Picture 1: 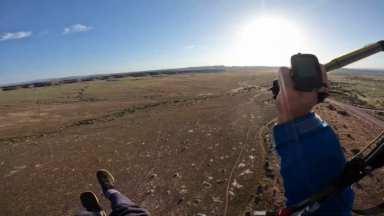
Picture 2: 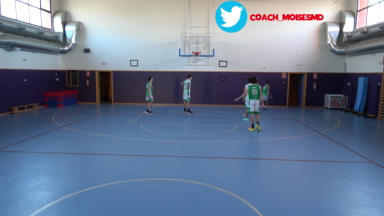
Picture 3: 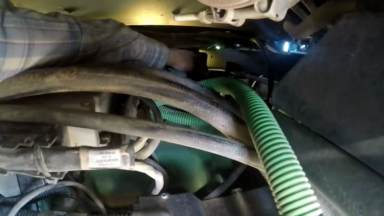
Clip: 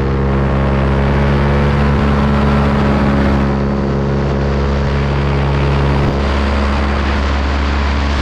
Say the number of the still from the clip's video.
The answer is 1